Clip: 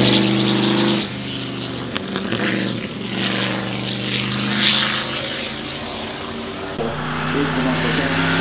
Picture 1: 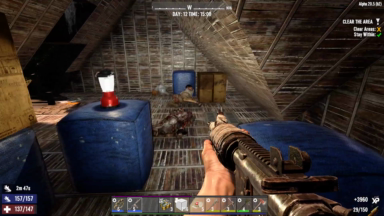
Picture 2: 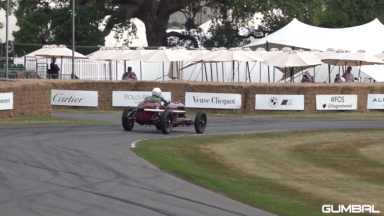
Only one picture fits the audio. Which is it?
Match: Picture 2